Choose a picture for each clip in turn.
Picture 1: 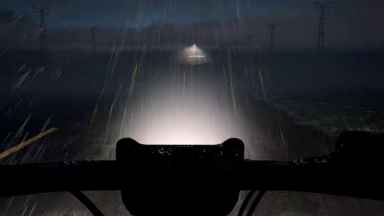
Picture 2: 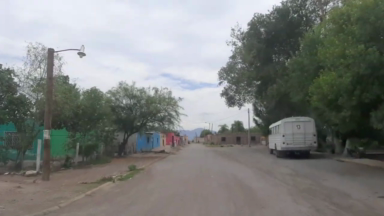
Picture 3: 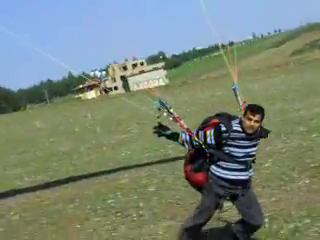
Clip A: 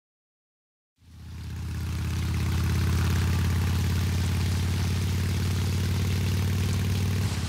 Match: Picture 1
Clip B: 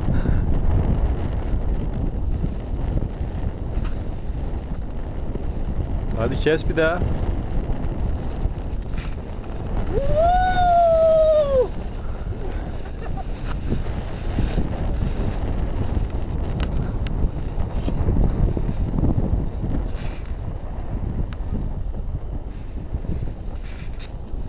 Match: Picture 3